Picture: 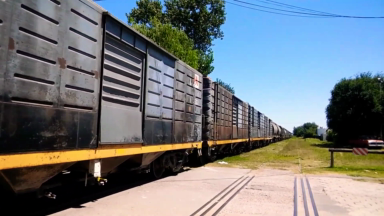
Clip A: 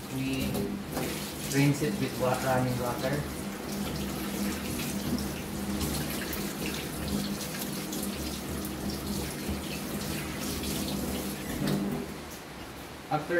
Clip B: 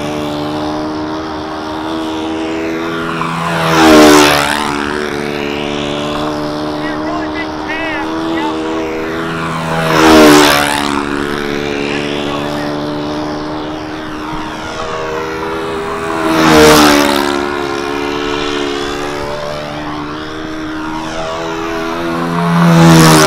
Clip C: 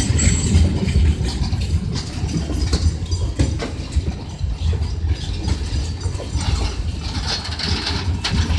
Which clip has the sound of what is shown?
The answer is C